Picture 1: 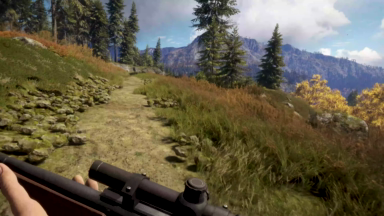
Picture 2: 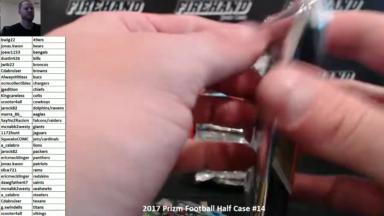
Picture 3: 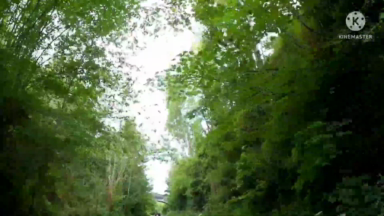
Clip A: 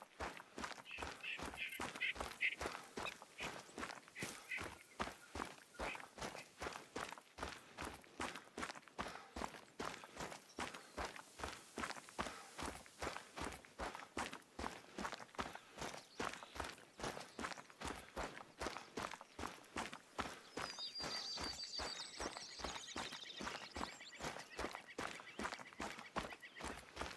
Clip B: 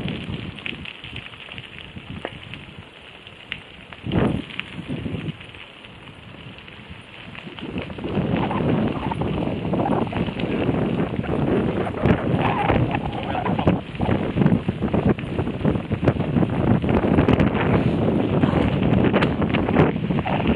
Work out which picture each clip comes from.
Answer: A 1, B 3